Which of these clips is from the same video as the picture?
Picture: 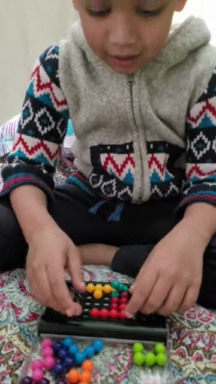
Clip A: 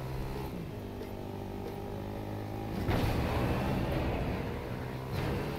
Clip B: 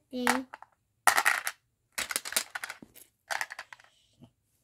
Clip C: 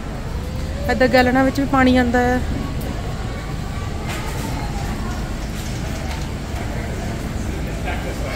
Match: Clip B